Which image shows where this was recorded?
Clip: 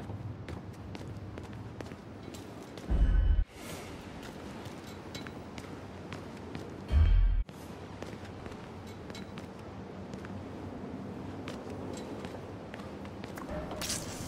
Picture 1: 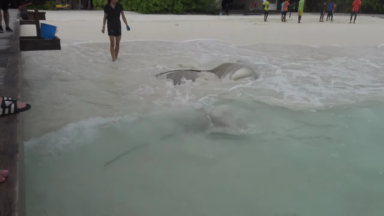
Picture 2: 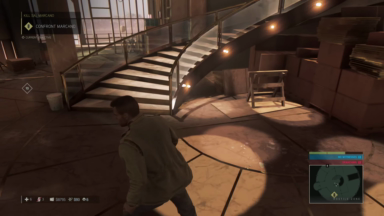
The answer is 2